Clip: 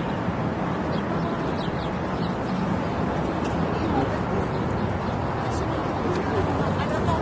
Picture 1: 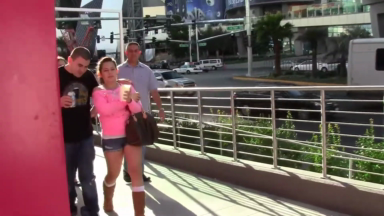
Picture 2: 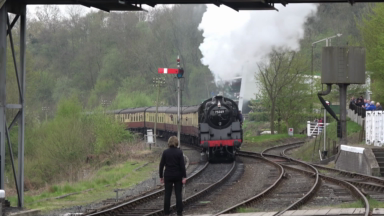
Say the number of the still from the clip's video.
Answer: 1